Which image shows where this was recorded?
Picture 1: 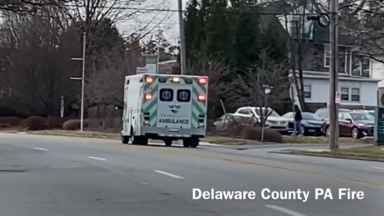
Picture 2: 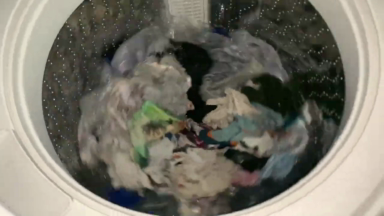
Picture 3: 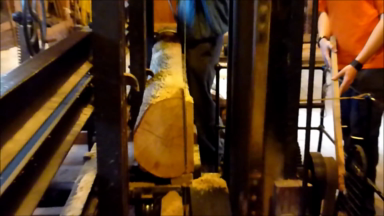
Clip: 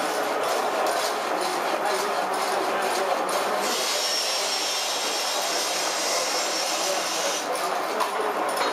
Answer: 3